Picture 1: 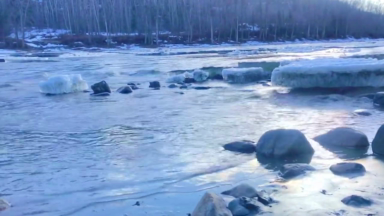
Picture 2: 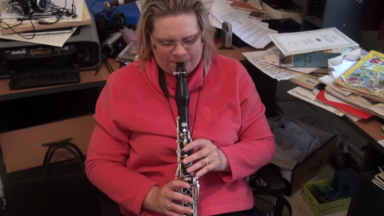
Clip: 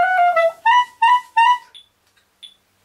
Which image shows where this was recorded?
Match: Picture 2